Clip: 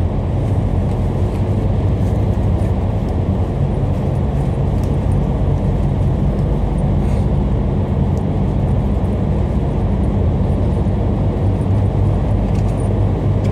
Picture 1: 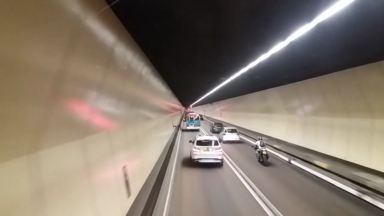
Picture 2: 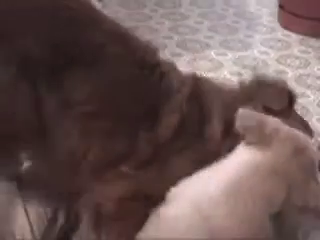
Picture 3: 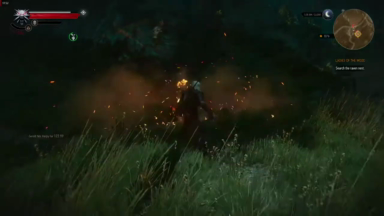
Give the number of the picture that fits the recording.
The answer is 1